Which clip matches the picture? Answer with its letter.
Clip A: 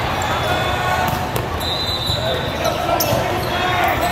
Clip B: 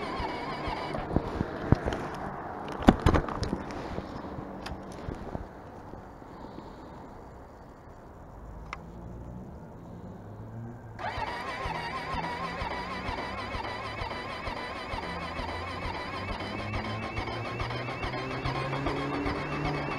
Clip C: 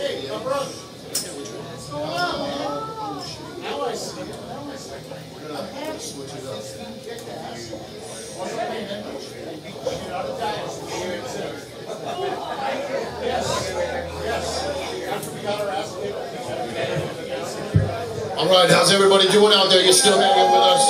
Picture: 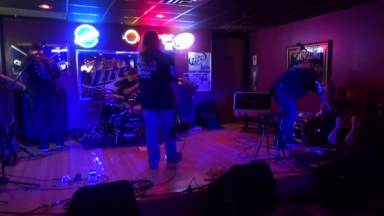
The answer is C